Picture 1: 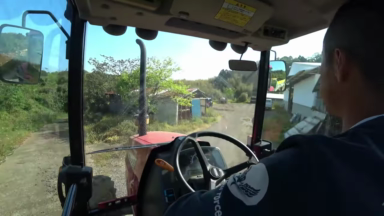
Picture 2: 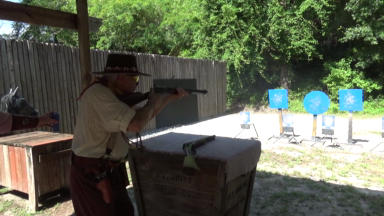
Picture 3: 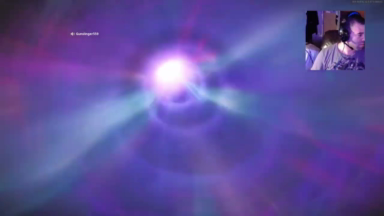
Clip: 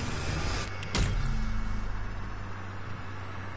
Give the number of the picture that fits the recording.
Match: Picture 3